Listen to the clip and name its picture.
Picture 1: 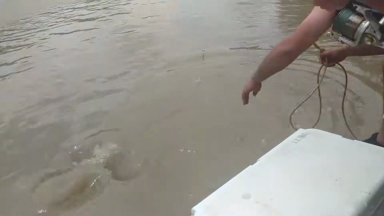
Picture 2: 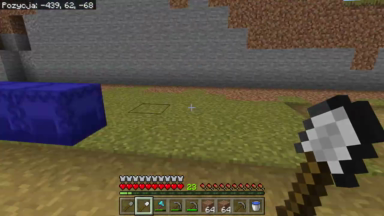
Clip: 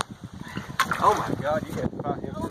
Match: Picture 1